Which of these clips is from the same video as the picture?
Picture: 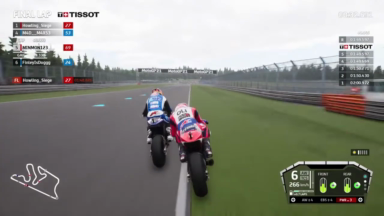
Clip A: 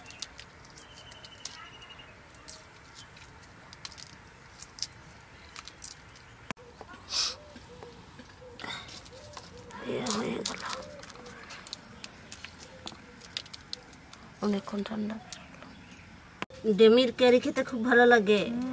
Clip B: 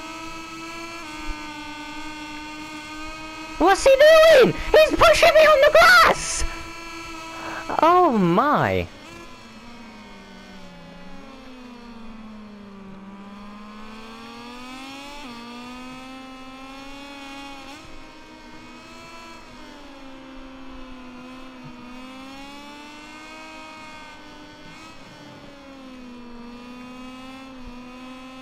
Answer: B